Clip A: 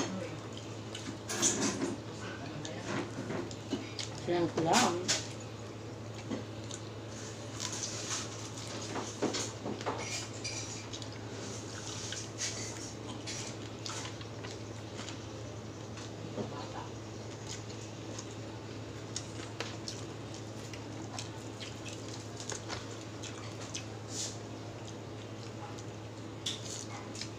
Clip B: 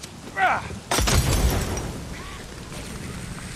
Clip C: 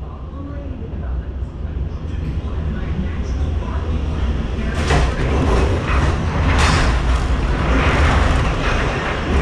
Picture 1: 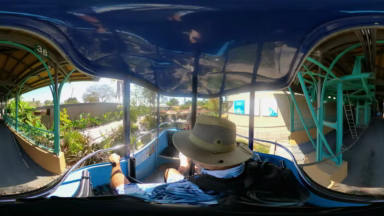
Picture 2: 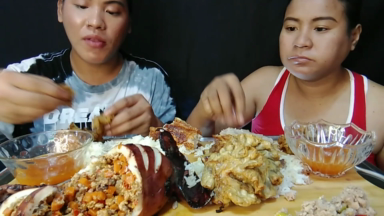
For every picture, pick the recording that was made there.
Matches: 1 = C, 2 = A